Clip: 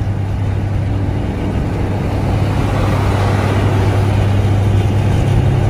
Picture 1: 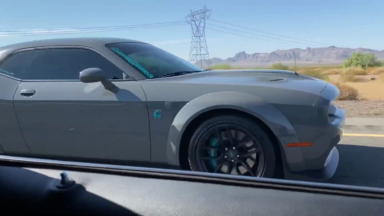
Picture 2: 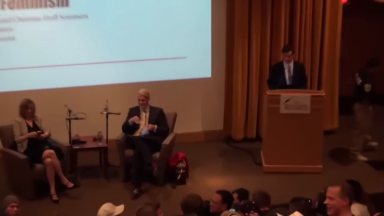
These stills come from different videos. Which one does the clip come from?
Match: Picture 1